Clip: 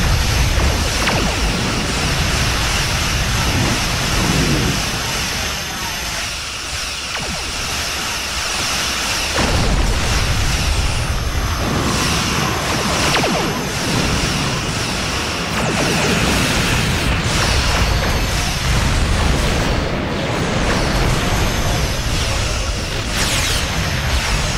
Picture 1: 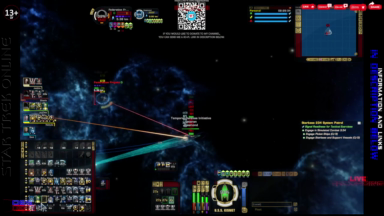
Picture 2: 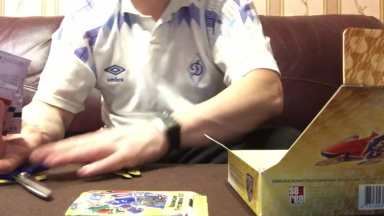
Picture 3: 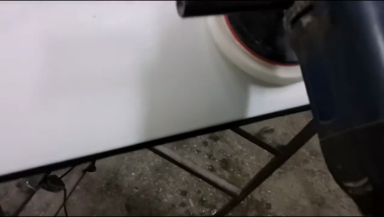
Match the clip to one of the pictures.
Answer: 1